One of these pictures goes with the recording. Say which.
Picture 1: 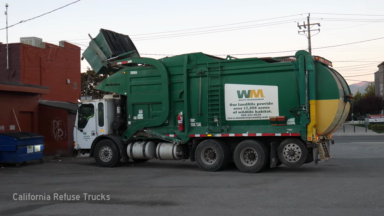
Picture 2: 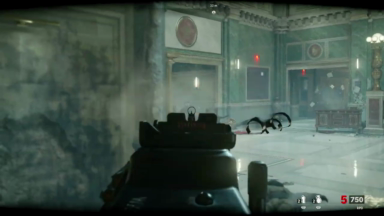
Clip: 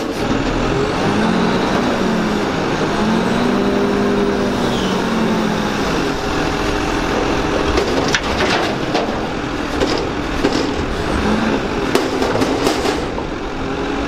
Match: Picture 1